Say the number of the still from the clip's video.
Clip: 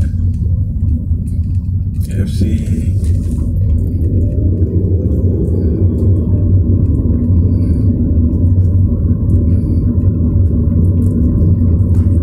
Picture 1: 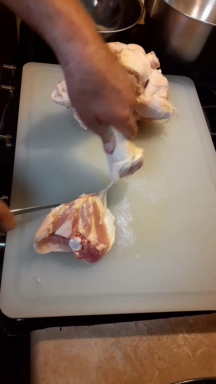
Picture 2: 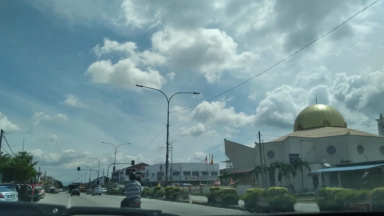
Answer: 2